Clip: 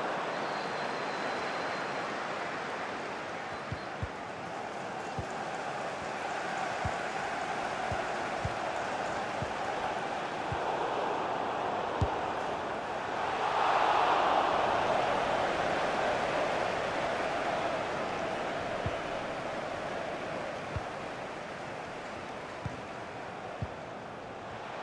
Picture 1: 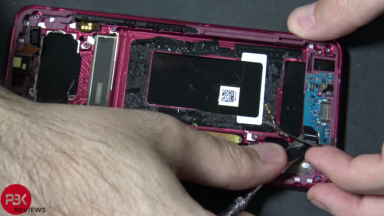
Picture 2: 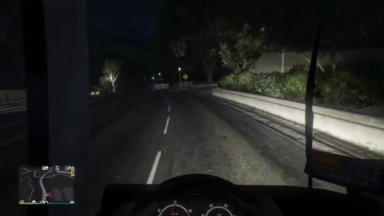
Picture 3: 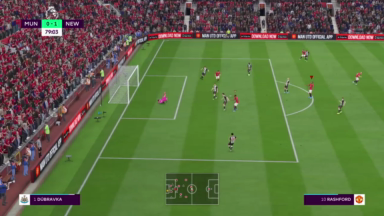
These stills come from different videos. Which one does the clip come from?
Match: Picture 3